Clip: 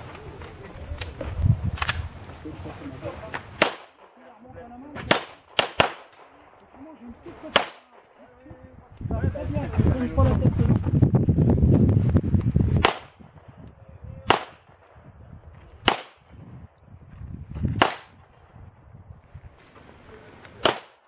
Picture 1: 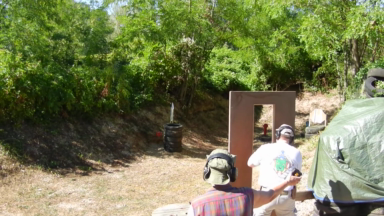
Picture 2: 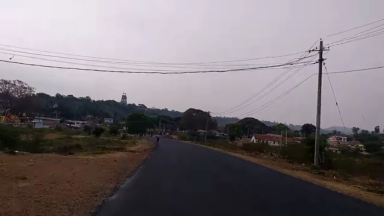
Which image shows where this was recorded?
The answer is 1